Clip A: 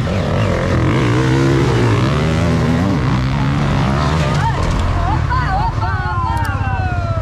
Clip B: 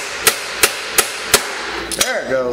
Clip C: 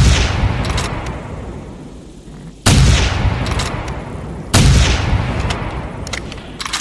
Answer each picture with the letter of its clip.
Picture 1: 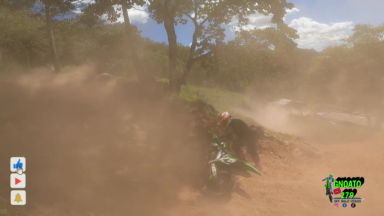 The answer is A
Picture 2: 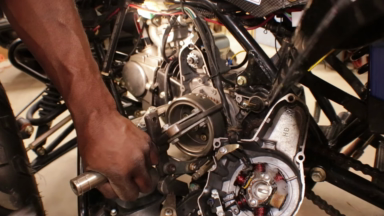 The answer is B